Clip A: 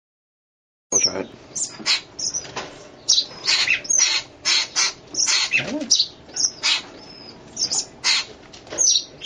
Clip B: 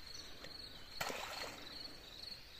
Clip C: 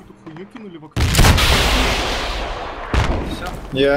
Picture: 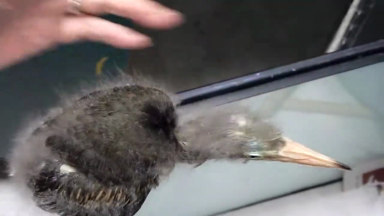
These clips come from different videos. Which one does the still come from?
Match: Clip A